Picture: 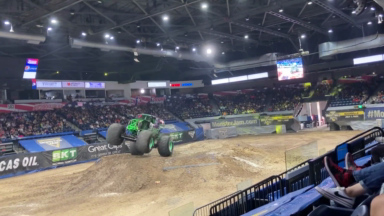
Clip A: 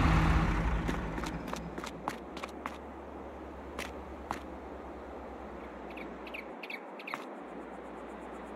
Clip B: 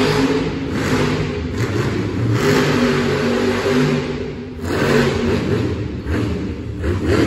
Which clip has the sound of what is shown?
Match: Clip B